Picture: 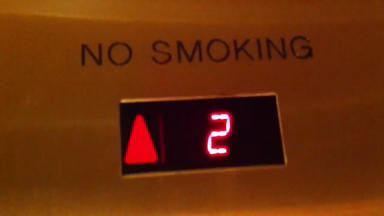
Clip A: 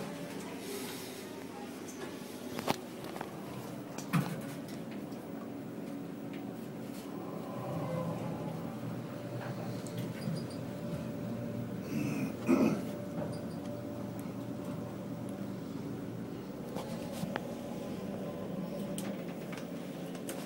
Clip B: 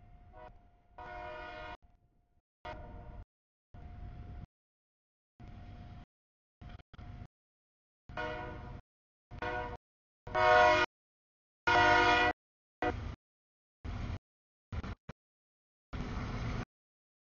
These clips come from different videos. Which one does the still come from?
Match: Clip A